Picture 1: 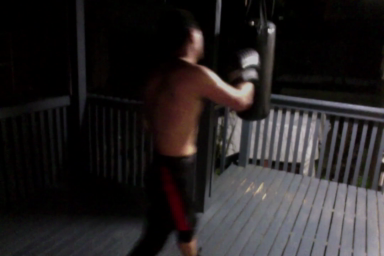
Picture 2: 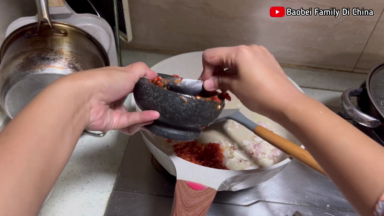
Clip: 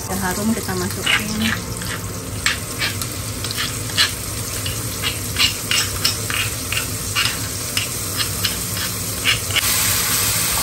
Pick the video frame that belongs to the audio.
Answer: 2